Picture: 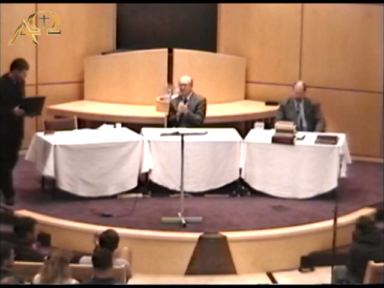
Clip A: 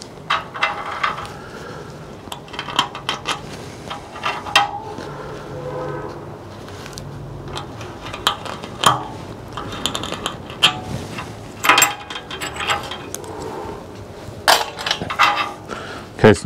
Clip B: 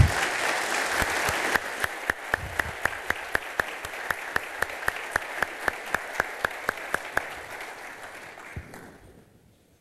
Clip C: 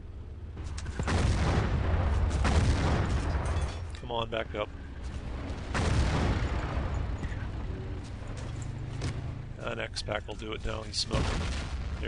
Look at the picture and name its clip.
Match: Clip B